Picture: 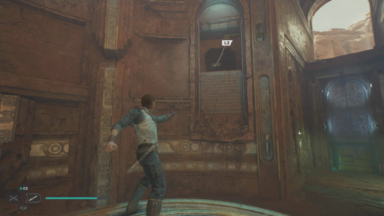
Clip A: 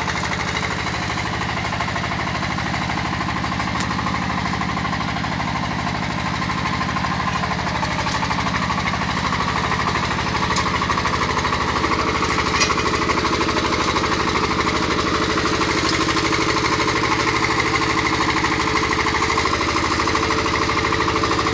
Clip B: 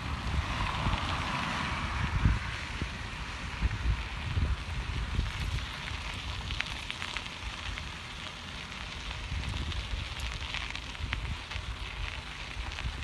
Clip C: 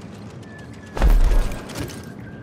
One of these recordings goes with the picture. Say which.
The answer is C